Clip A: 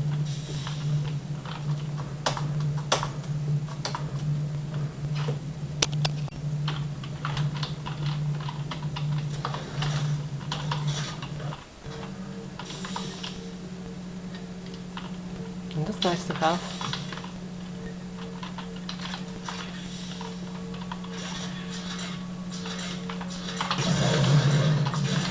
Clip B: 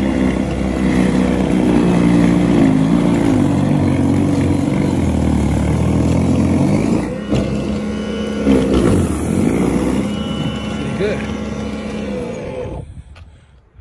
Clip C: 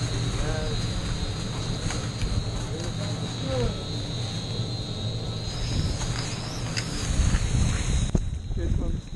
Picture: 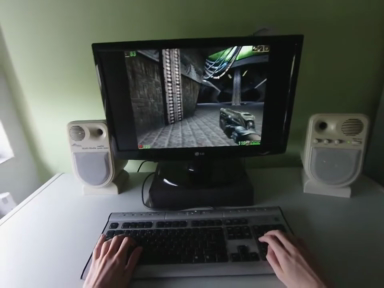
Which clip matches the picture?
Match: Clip A